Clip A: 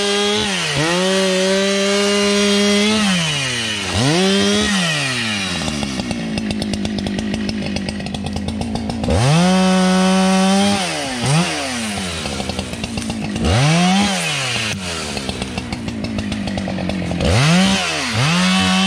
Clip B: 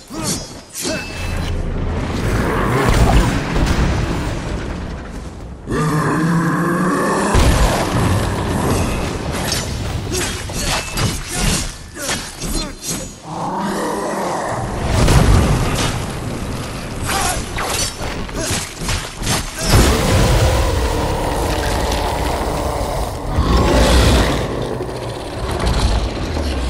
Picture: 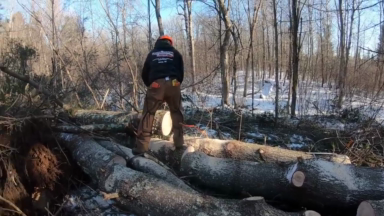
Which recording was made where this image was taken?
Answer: A